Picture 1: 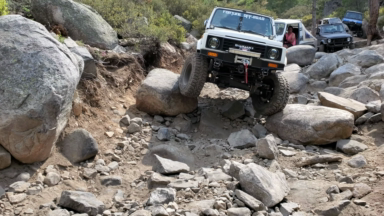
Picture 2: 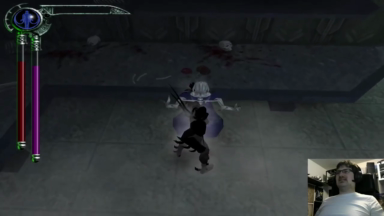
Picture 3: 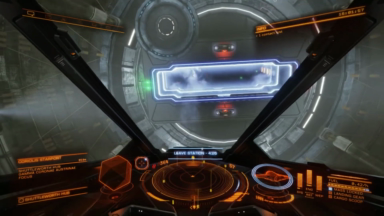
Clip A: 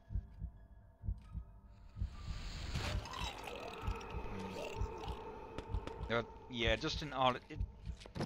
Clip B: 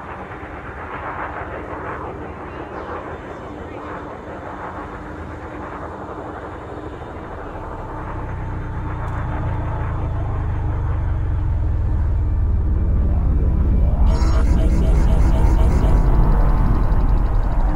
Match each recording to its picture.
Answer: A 2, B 3